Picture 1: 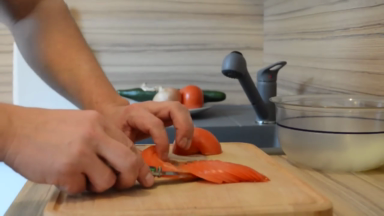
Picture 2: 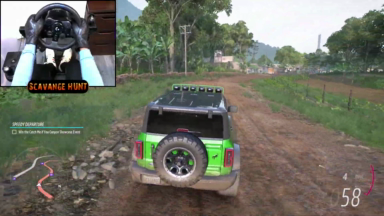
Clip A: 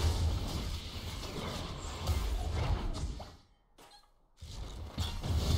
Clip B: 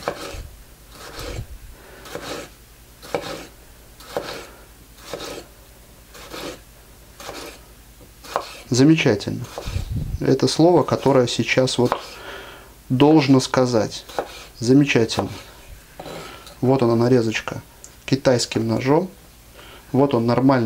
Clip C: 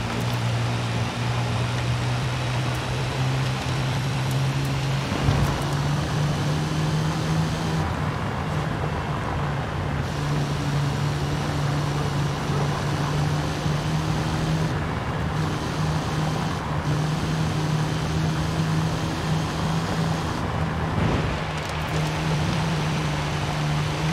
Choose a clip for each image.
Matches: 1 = B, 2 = C